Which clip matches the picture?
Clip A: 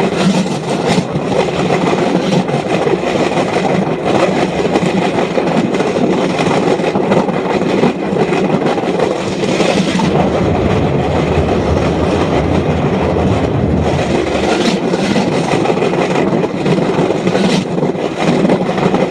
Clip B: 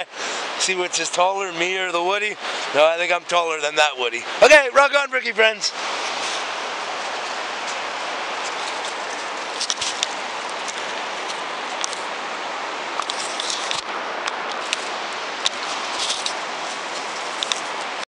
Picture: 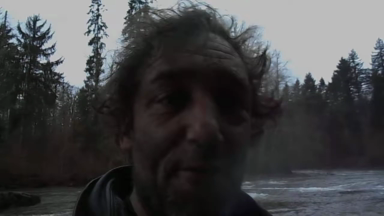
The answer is B